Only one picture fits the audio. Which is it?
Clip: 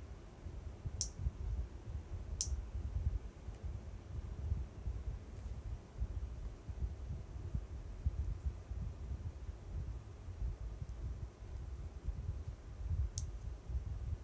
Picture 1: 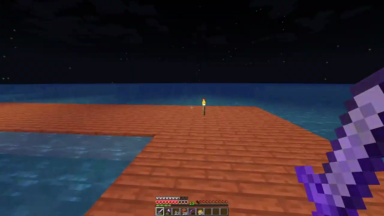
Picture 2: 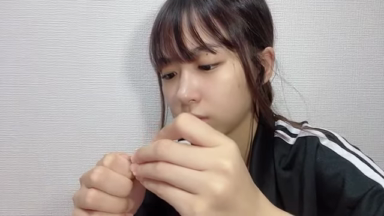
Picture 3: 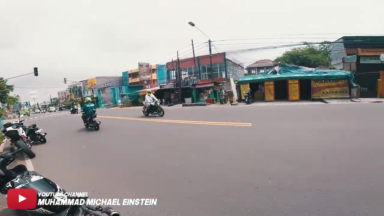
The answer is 2